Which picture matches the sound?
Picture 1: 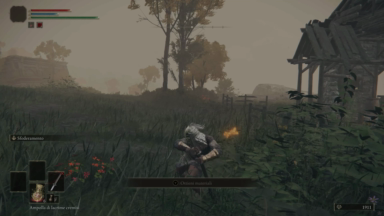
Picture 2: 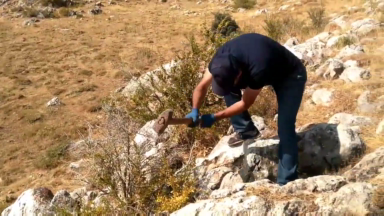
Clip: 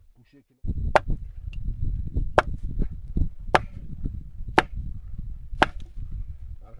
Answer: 2